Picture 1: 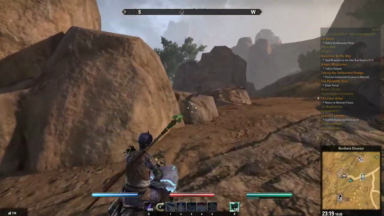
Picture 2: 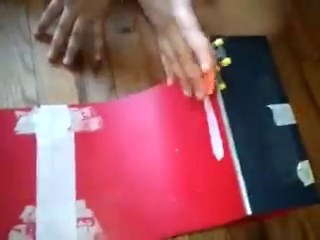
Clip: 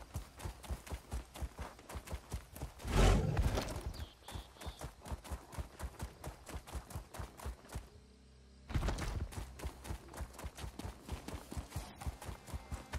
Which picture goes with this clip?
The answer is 1